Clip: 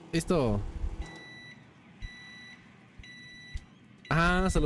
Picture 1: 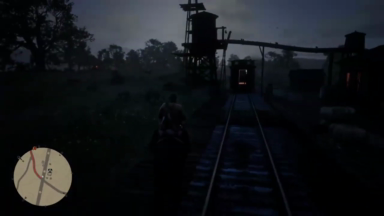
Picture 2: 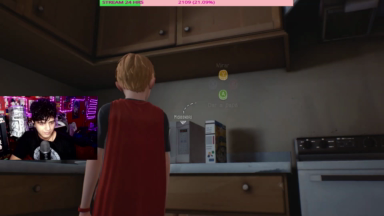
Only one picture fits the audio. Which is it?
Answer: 2